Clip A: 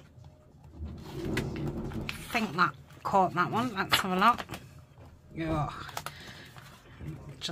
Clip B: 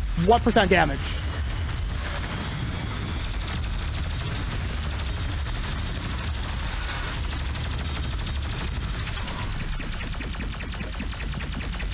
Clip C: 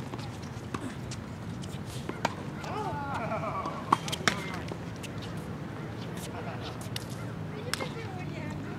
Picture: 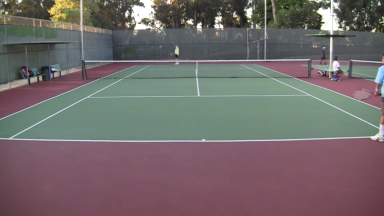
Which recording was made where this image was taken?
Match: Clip C